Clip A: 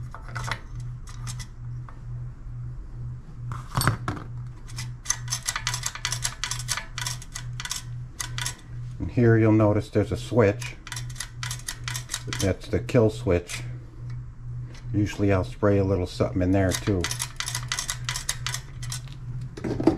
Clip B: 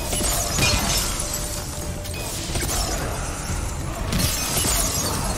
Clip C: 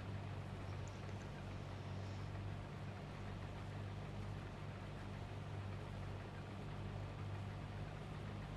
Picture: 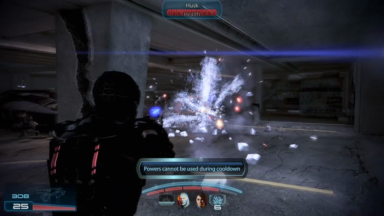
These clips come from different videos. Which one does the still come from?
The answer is B